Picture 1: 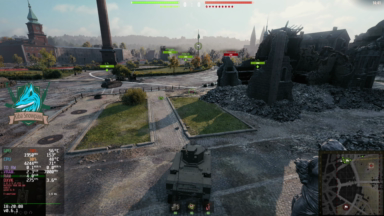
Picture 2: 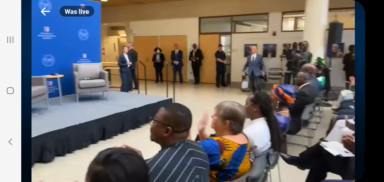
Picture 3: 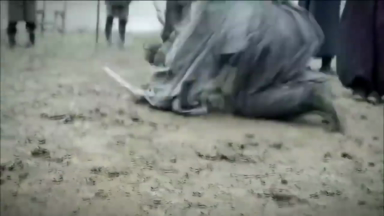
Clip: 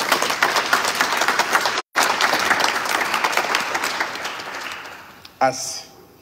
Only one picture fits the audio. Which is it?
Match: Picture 2